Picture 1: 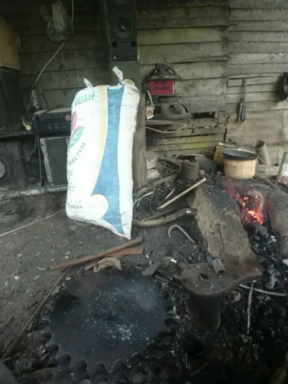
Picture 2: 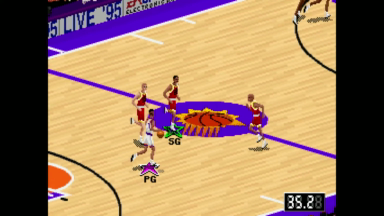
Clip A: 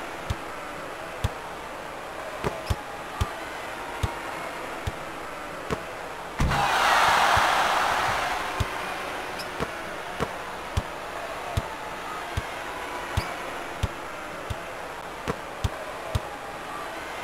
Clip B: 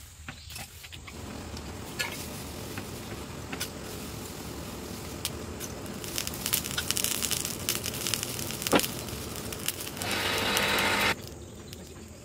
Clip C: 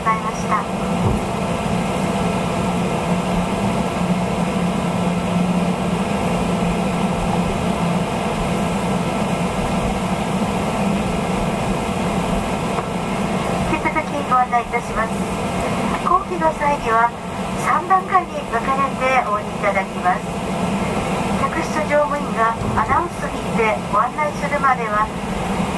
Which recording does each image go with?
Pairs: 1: B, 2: A